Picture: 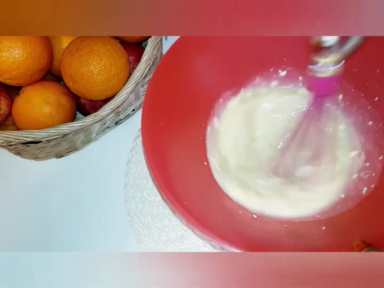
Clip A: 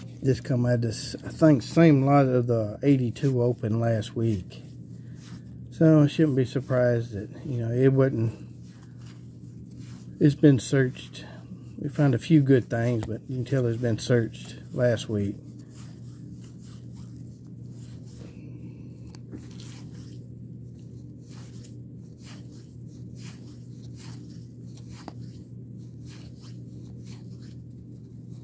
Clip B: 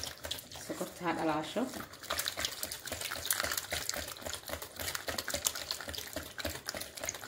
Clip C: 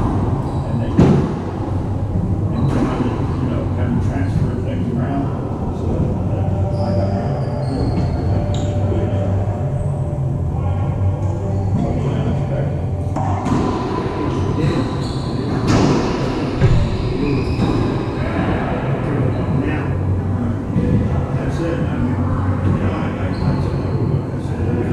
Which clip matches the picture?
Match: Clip B